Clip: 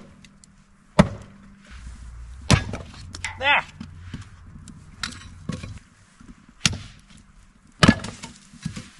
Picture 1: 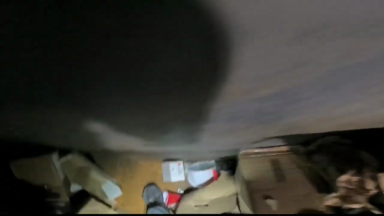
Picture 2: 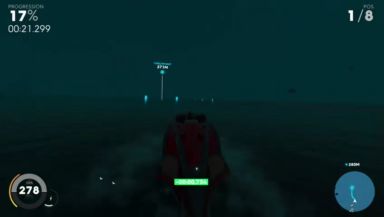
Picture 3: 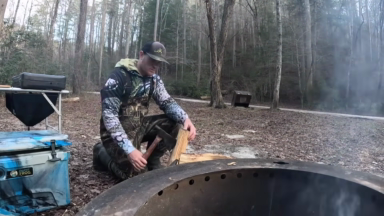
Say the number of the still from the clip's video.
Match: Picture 3